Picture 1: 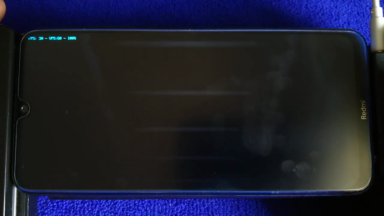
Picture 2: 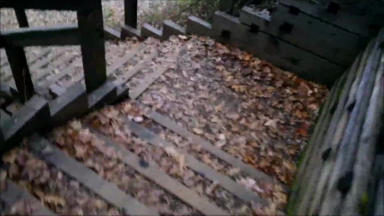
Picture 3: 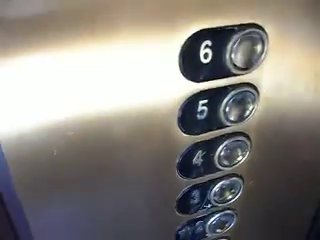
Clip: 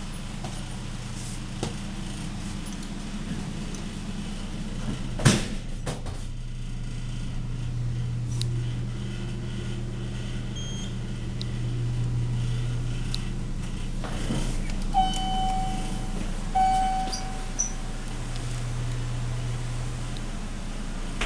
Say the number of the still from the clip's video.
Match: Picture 3